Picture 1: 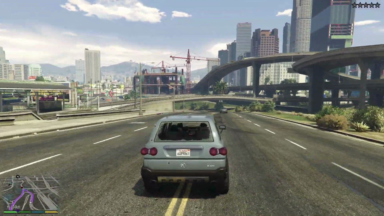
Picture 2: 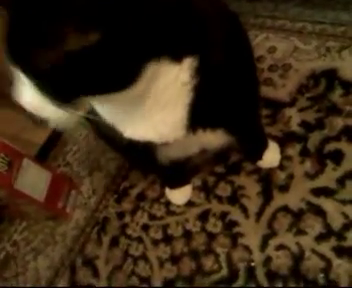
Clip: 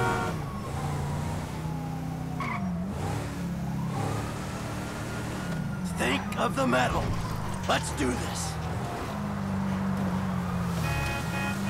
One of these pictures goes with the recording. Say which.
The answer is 1